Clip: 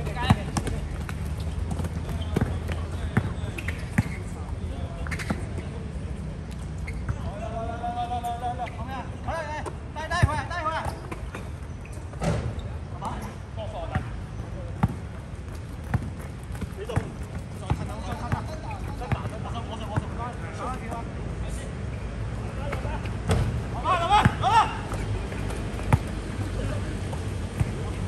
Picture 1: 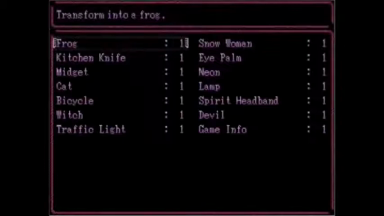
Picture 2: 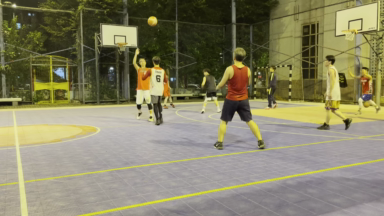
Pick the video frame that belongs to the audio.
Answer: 2